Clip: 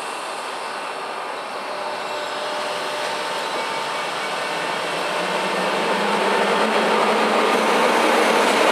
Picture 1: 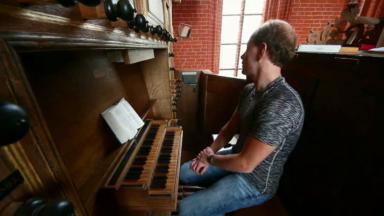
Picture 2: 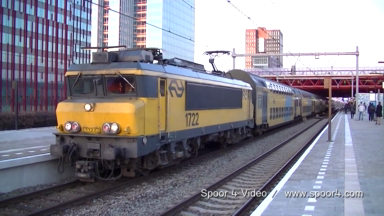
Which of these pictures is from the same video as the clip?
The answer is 2